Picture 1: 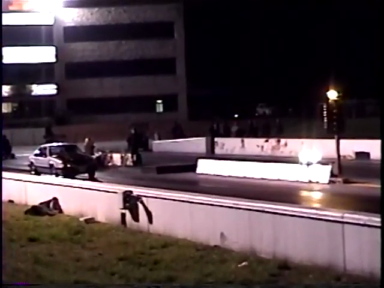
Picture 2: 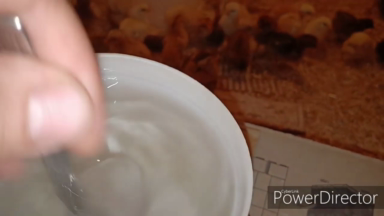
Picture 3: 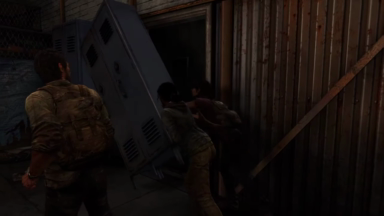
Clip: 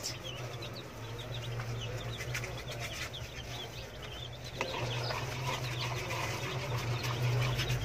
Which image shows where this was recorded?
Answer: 2